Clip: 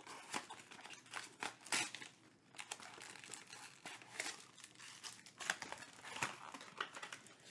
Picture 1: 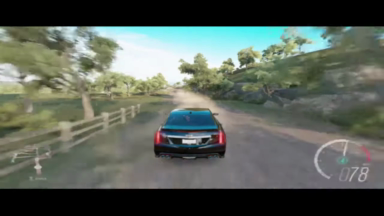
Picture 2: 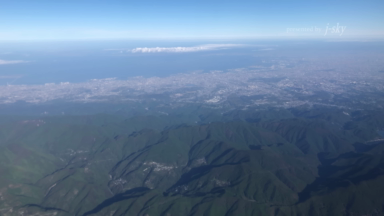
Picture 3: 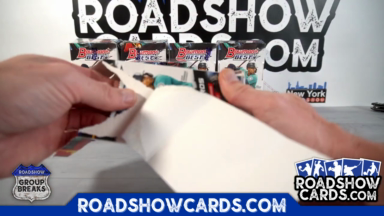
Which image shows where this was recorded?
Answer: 3